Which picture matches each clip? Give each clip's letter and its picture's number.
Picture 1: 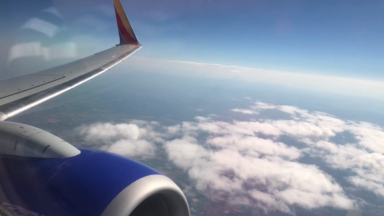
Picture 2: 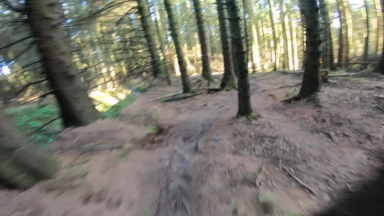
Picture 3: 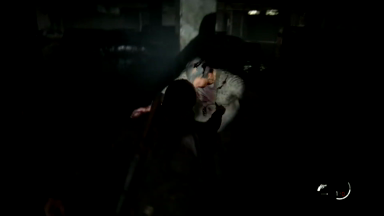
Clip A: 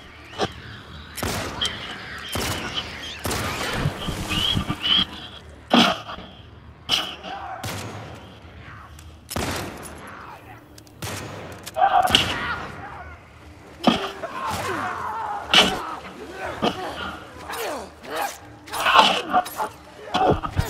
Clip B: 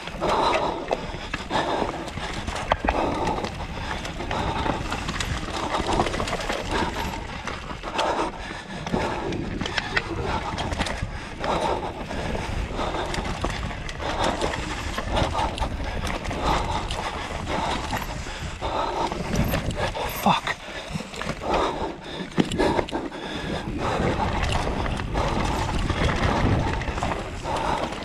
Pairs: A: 3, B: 2